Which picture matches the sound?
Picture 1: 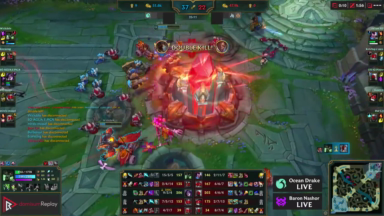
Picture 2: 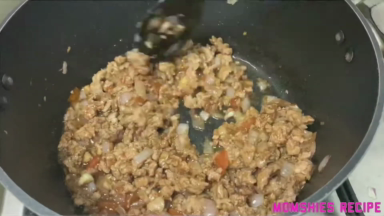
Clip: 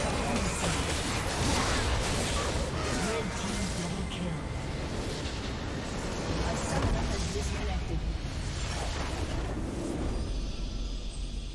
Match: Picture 1